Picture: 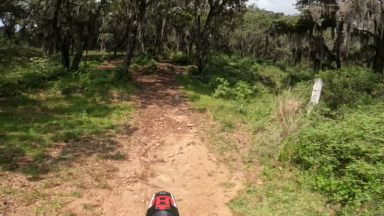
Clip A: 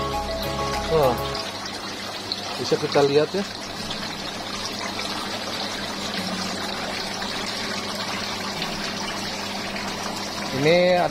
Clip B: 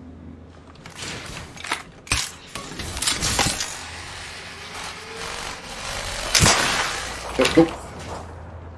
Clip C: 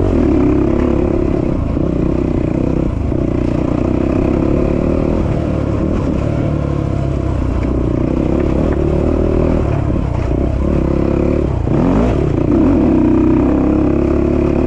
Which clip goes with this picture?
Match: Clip C